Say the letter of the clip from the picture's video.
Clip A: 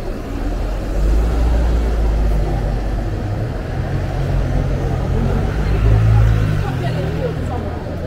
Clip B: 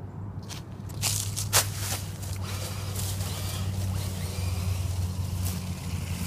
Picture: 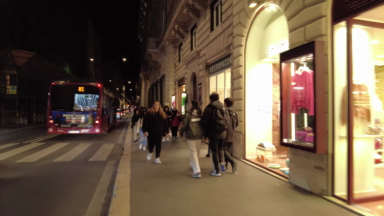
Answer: A